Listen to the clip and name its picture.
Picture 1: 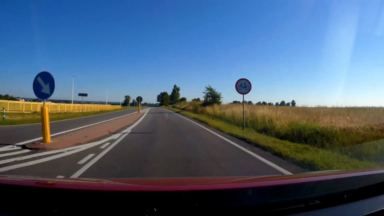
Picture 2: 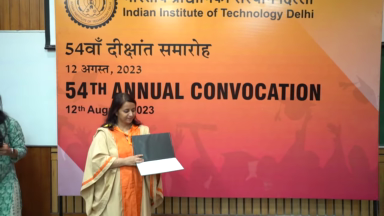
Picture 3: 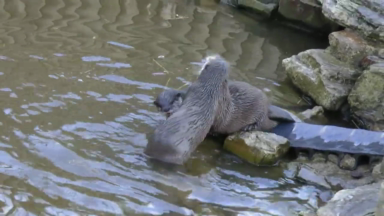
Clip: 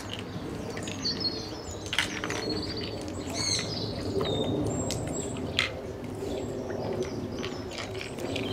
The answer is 3